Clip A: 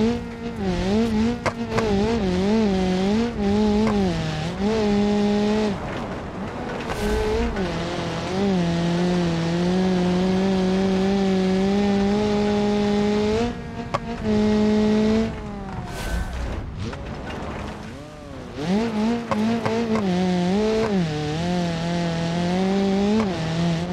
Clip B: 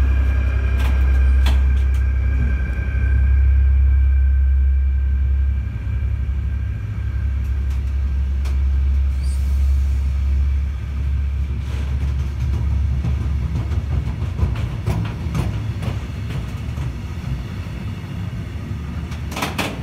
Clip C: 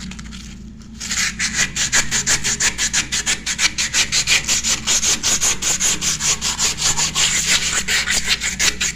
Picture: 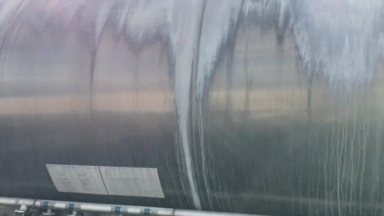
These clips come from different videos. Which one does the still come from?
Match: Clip B